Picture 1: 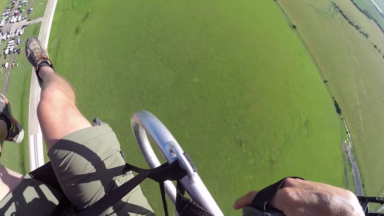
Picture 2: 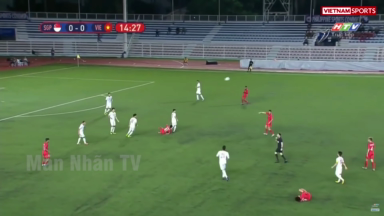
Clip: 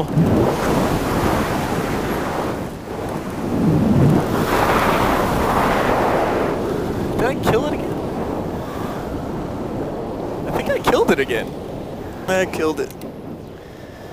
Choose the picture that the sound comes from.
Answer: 1